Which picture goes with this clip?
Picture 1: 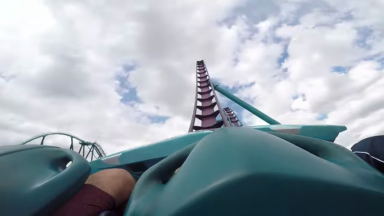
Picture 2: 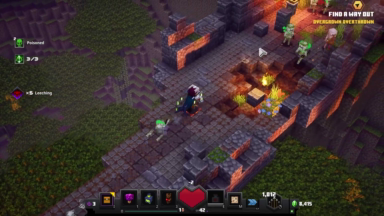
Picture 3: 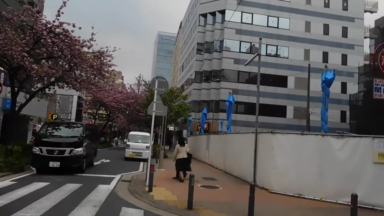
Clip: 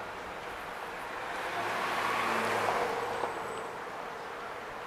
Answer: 3